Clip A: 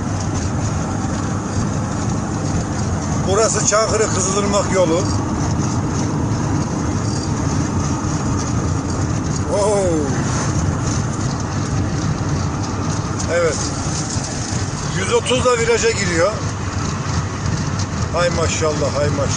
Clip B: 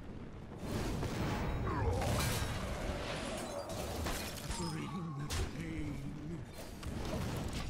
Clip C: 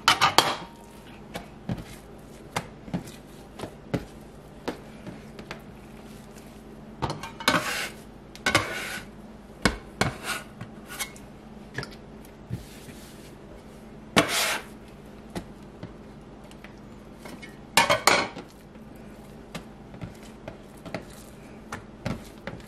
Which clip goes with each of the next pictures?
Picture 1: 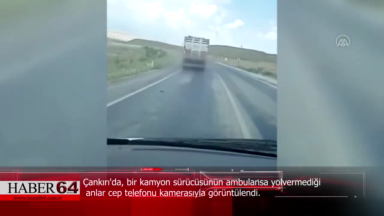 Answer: A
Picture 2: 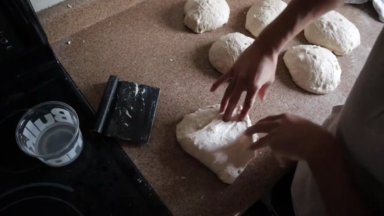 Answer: C